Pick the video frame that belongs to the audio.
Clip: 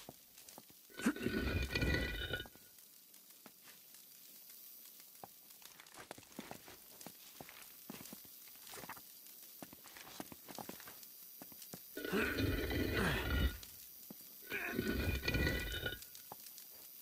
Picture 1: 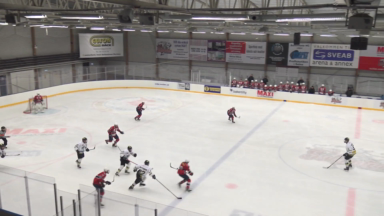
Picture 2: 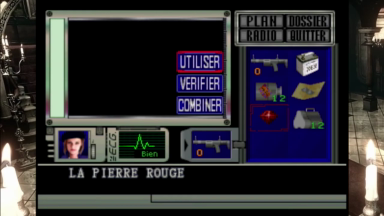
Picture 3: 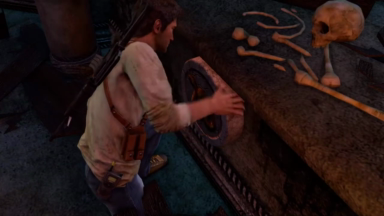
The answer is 3